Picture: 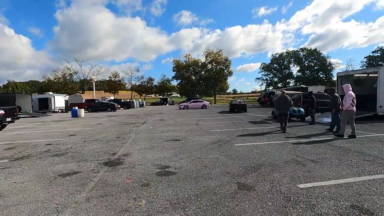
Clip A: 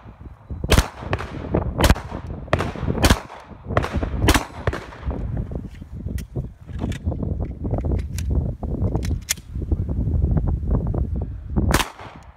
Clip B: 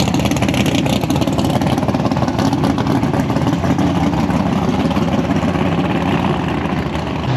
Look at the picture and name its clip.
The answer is B